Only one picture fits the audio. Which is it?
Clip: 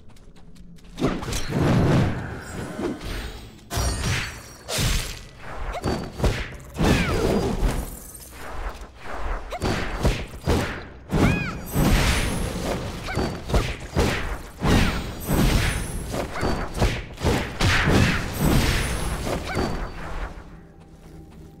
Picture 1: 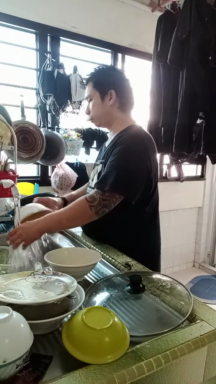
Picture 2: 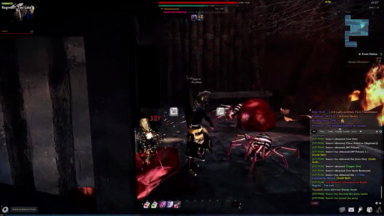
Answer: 2